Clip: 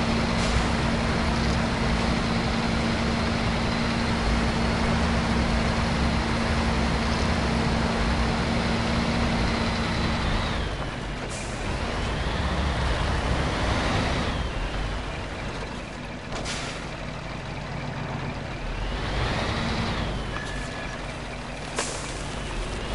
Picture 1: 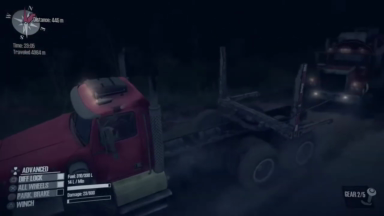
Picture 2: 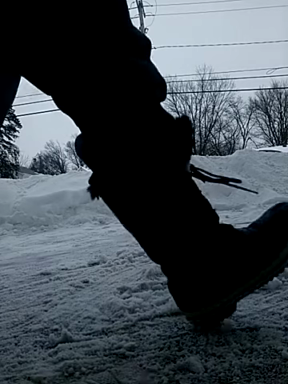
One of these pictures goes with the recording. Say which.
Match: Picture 1